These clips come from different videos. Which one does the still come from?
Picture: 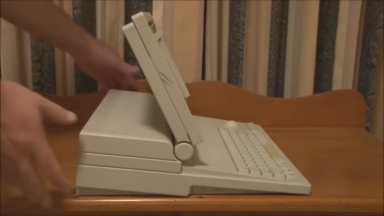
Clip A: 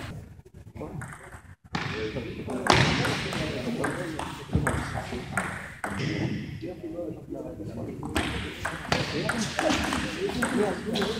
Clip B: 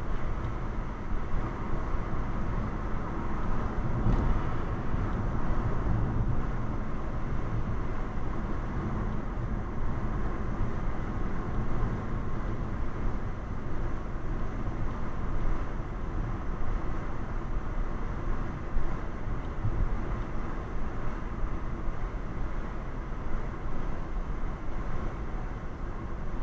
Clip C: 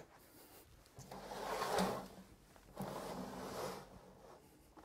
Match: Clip C